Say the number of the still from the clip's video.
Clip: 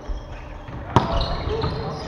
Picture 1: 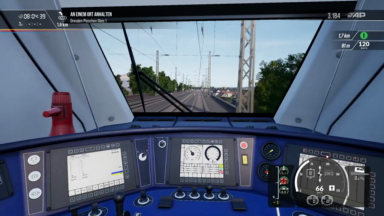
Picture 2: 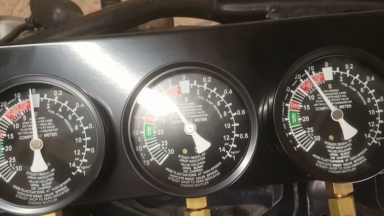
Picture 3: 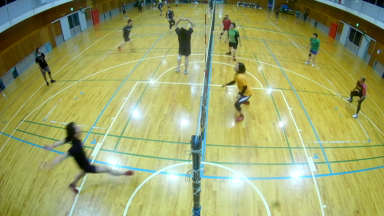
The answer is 3